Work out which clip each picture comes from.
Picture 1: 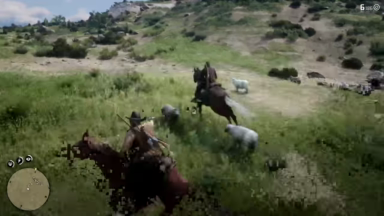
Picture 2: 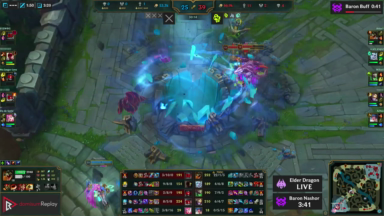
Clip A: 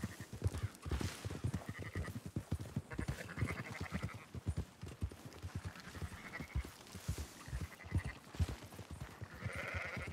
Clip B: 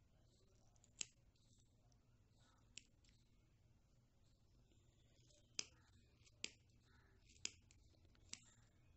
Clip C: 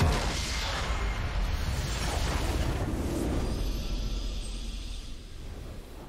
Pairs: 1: A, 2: C